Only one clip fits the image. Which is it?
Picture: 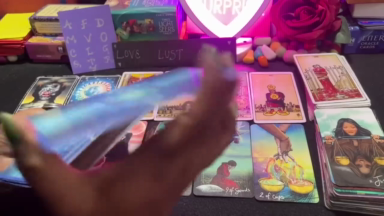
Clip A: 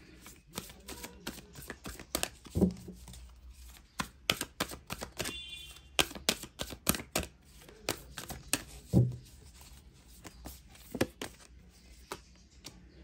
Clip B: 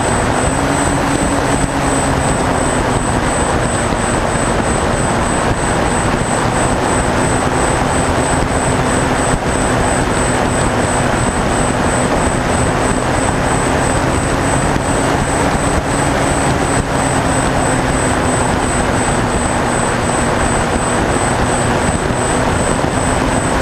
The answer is A